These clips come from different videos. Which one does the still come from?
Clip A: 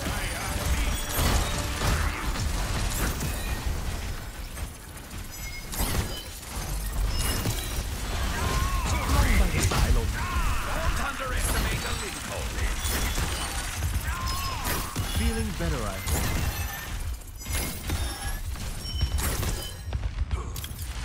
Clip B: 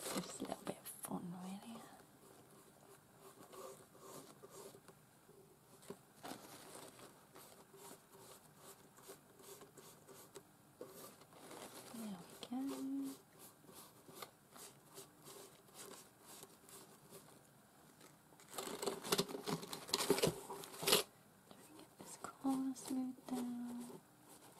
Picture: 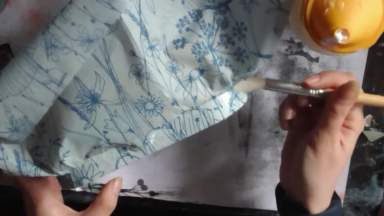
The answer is B